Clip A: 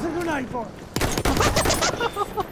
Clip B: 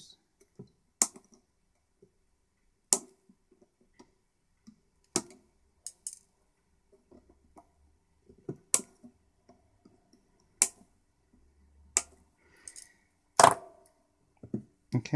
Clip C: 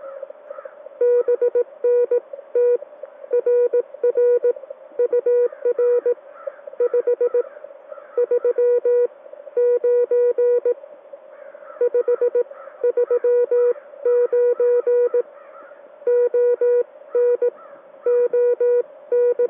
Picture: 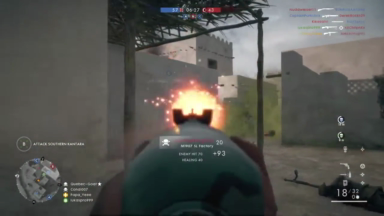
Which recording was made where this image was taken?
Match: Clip A